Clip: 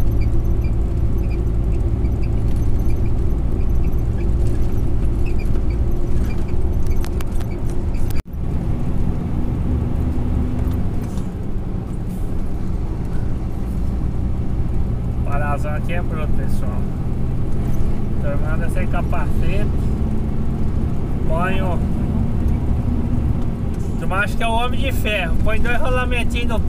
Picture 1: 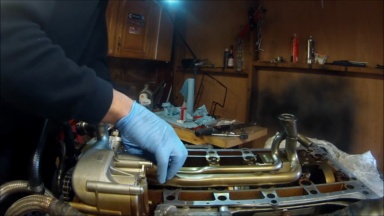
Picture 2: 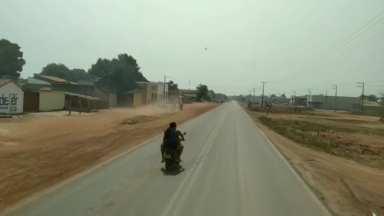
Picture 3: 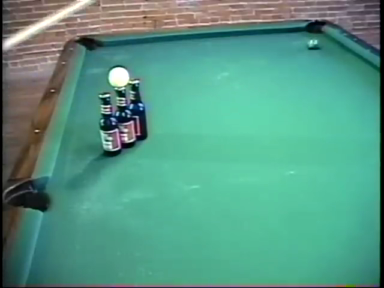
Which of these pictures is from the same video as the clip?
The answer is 2